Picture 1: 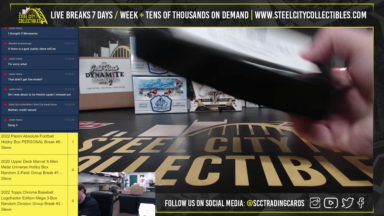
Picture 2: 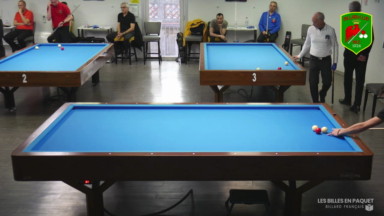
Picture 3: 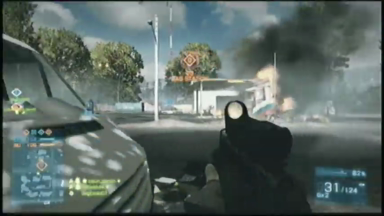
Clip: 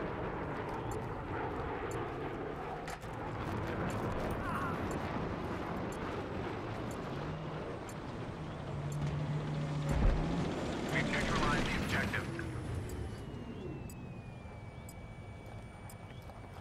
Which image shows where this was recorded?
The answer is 3